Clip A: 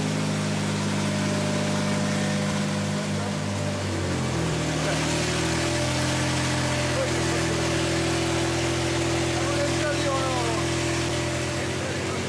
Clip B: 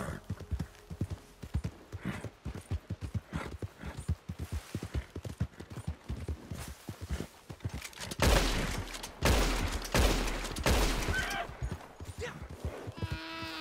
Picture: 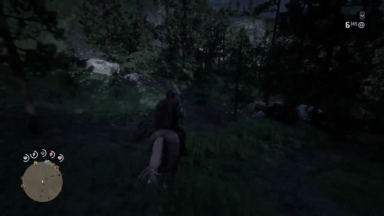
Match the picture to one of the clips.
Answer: B